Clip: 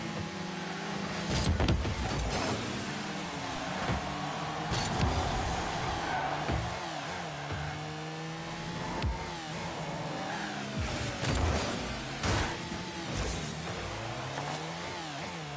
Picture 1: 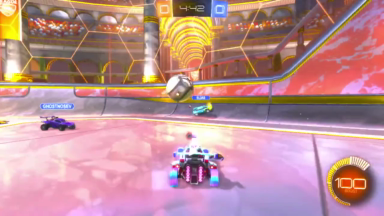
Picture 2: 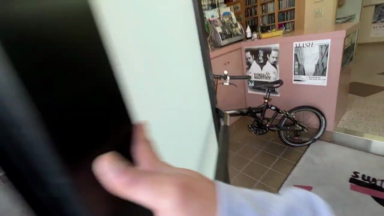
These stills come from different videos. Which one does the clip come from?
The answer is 1